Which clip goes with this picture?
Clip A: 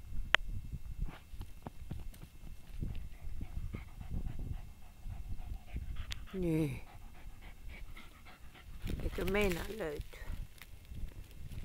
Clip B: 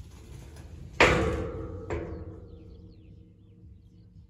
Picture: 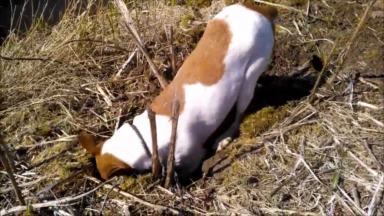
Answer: A